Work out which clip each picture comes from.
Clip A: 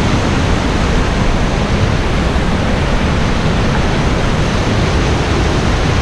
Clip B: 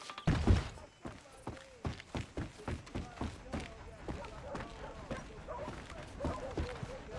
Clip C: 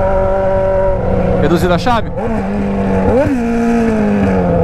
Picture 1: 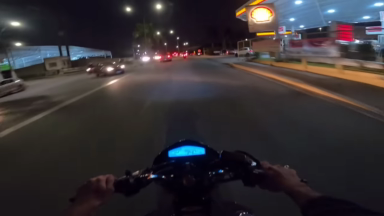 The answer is C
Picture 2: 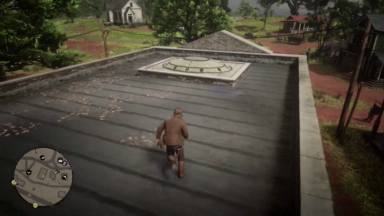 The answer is B